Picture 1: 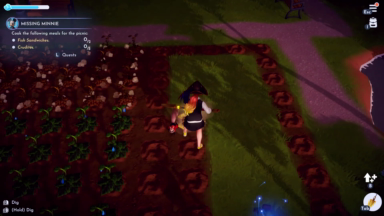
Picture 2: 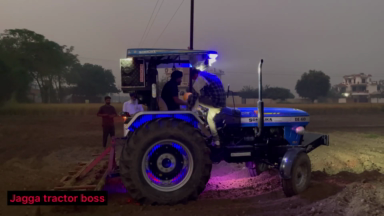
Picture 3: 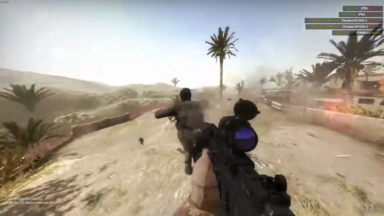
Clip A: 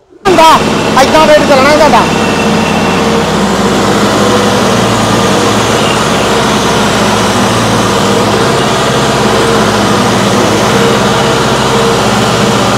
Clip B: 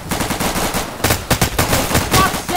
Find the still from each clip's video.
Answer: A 2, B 3